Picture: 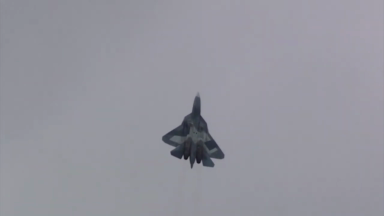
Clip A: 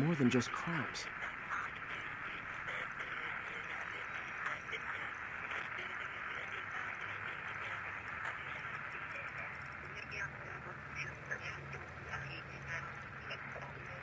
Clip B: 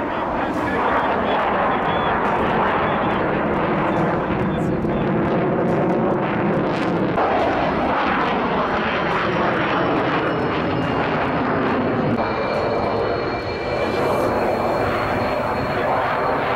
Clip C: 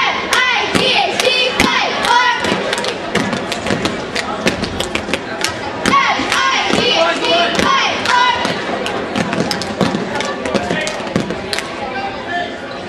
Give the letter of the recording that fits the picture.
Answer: B